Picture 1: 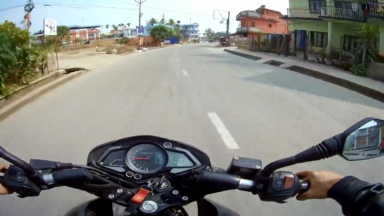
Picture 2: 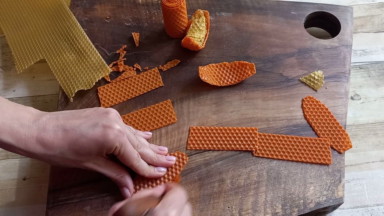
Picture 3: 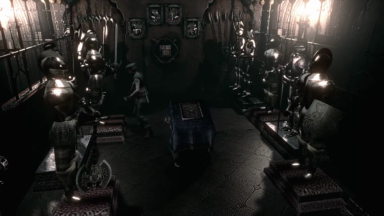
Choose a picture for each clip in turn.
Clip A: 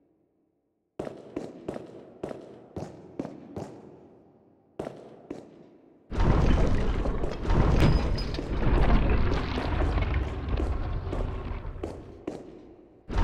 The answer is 3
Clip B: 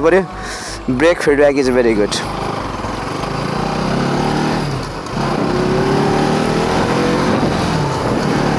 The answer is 1